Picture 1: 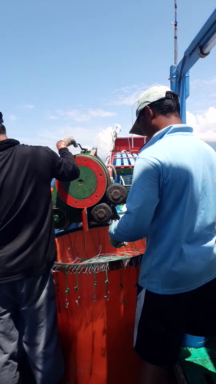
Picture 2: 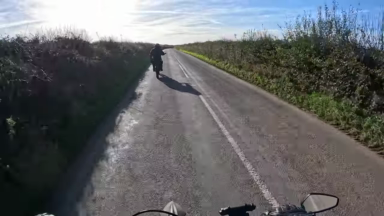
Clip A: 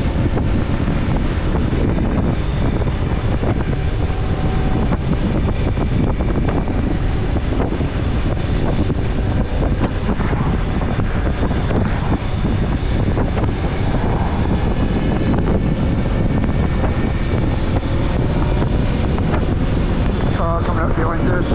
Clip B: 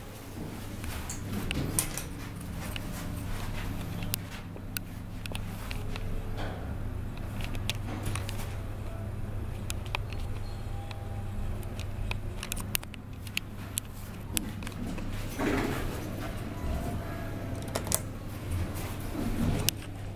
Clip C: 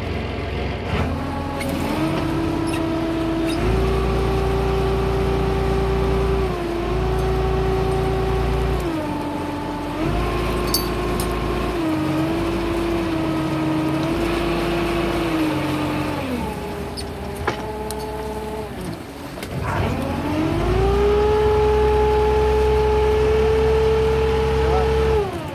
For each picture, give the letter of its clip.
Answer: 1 C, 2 A